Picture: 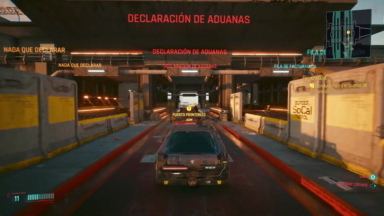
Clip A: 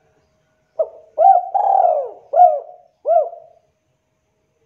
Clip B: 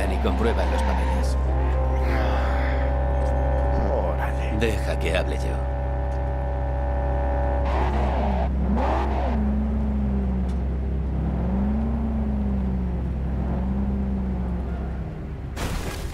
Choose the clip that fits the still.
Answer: B